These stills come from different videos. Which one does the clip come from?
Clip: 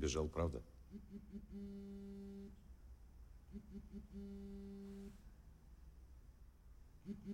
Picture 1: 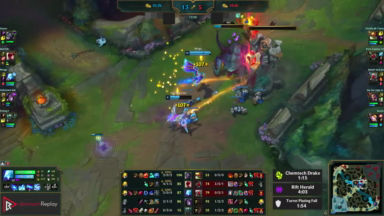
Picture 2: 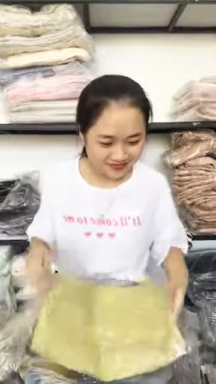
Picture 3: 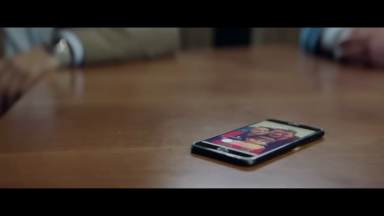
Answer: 3